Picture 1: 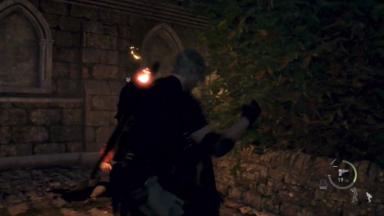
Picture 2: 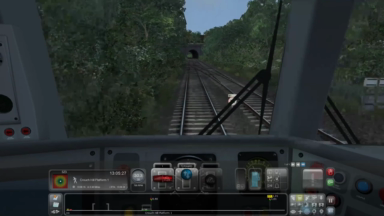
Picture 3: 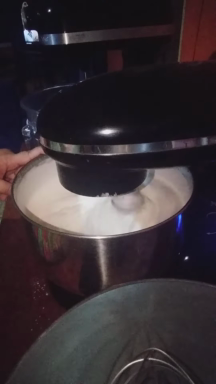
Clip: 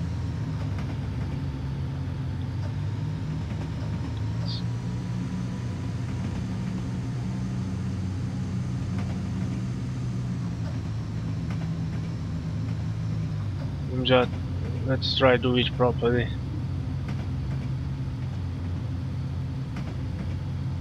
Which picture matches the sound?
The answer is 2